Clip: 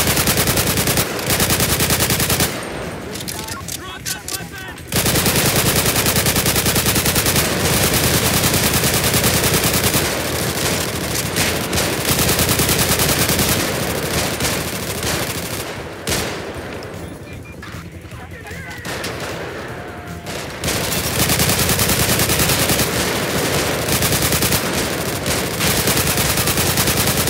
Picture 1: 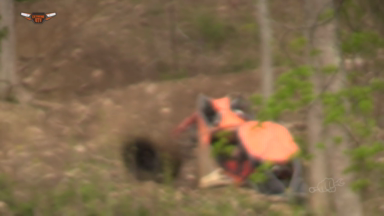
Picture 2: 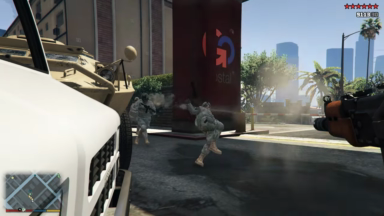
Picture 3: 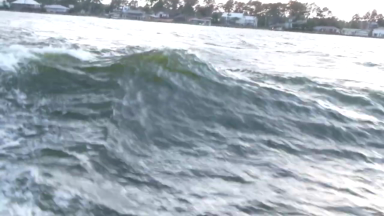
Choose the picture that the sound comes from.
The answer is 2